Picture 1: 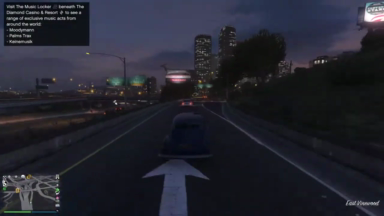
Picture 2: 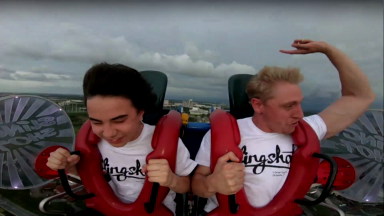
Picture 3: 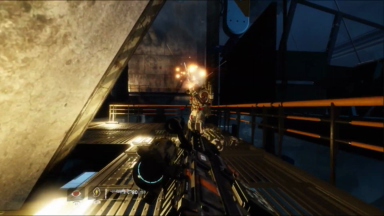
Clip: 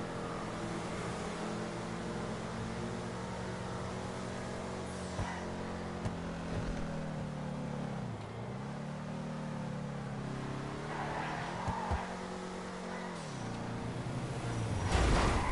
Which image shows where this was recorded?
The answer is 1